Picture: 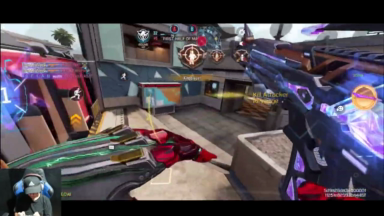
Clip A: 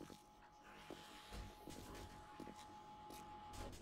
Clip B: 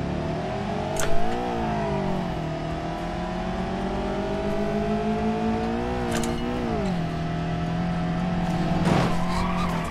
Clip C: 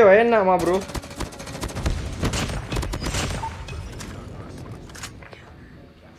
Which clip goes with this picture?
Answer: C